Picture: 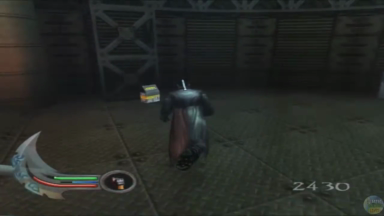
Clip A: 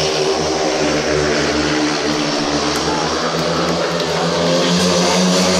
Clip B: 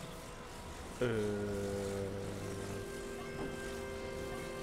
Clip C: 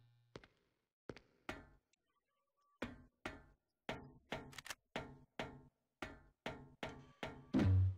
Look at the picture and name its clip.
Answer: C